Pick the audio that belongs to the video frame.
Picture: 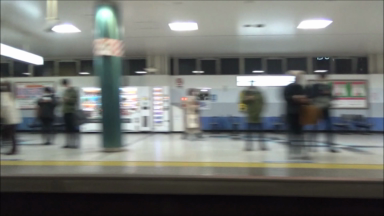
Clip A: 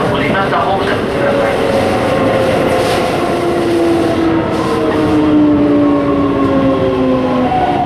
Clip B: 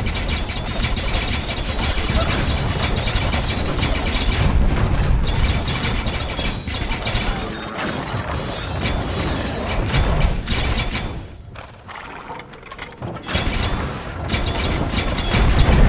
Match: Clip A